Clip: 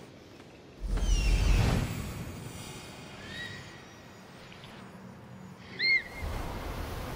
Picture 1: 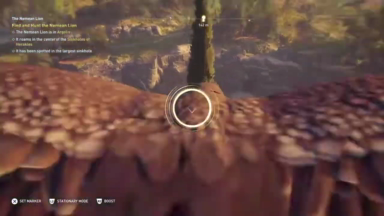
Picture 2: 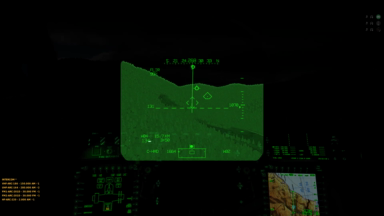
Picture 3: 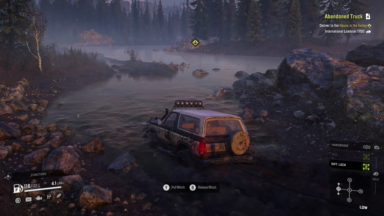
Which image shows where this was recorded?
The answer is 1